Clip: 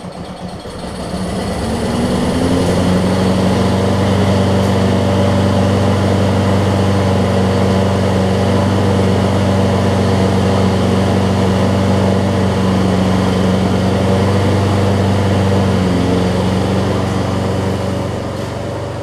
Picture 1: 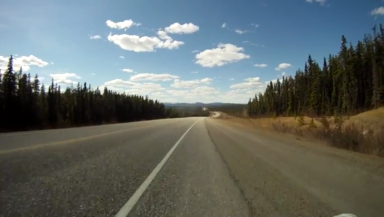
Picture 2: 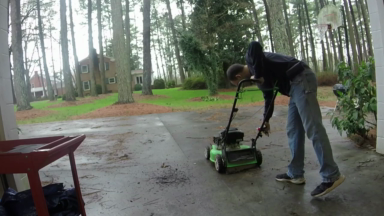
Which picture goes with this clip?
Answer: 2